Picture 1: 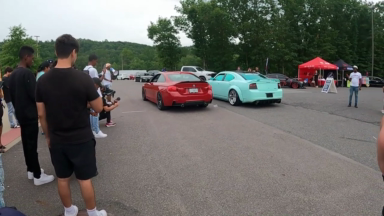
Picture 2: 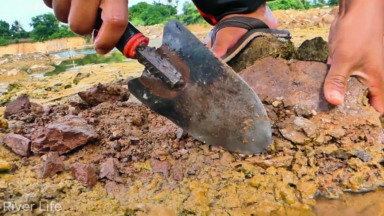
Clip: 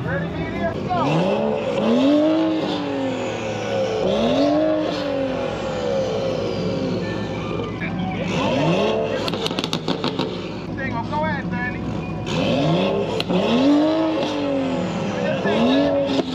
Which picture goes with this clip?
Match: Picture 1